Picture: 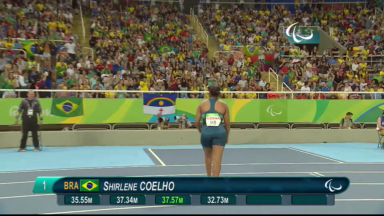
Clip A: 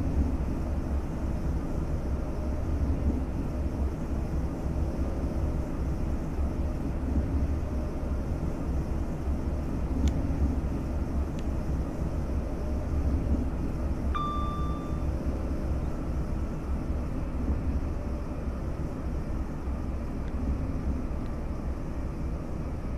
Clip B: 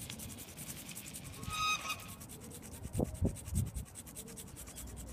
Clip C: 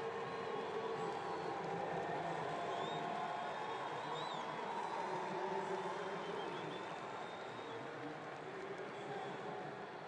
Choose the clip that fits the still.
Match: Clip C